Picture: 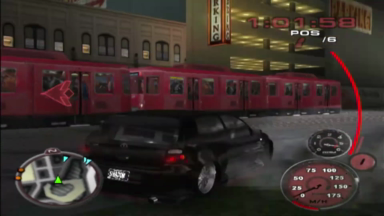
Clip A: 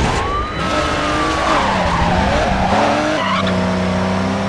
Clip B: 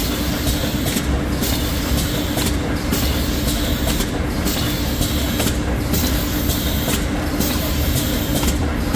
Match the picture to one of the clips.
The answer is A